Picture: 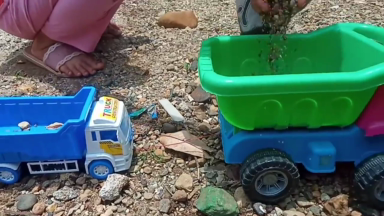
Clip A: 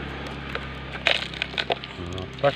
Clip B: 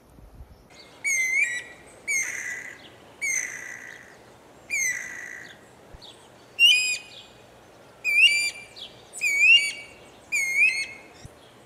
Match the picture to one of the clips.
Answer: A